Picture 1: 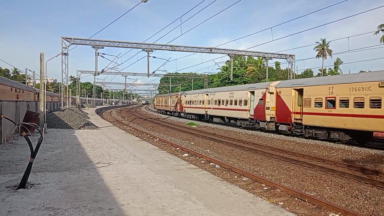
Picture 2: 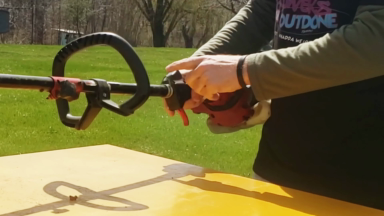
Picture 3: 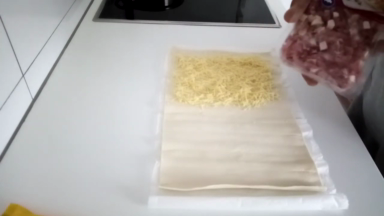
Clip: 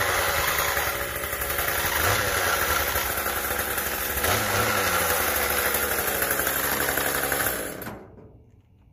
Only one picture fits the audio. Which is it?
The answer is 2